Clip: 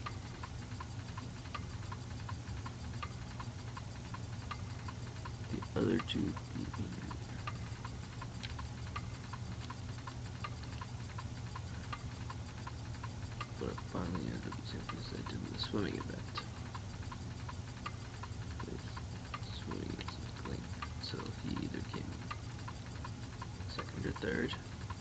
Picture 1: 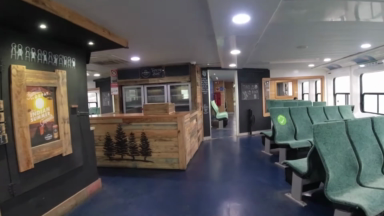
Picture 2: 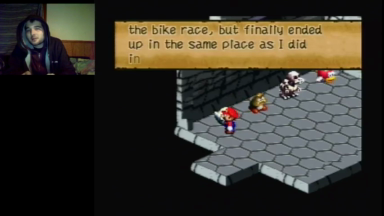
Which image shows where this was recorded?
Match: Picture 2